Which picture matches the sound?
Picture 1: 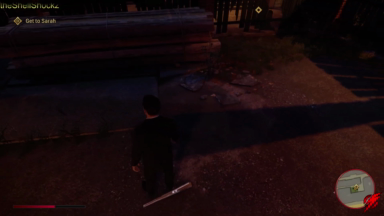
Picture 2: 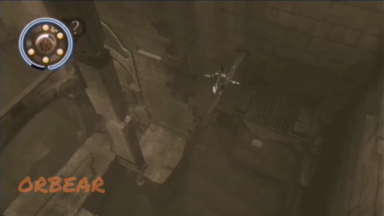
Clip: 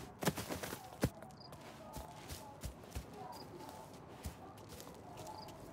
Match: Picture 1